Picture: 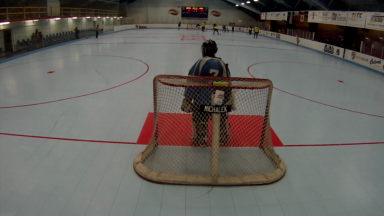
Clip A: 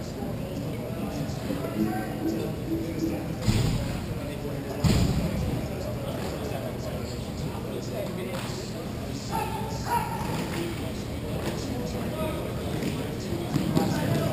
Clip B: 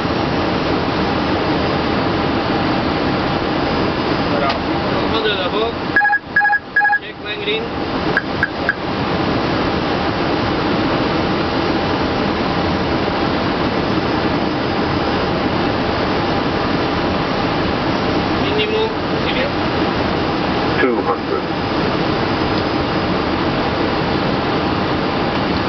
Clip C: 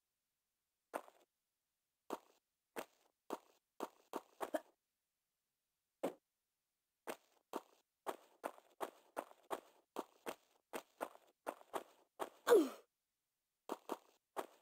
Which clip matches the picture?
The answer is A